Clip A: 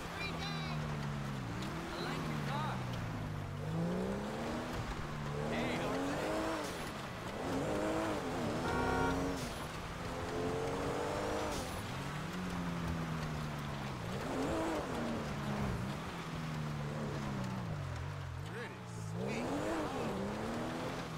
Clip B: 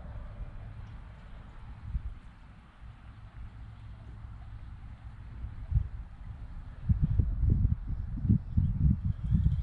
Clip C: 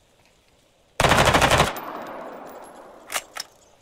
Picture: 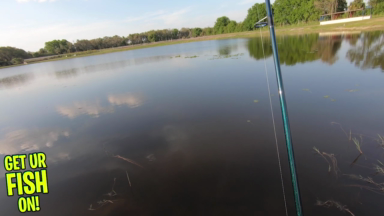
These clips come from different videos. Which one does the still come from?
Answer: B